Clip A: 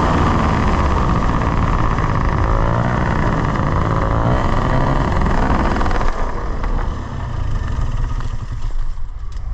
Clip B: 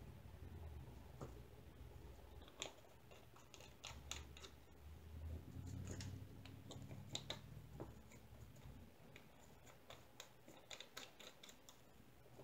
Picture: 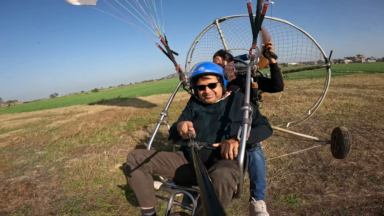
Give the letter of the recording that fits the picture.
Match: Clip A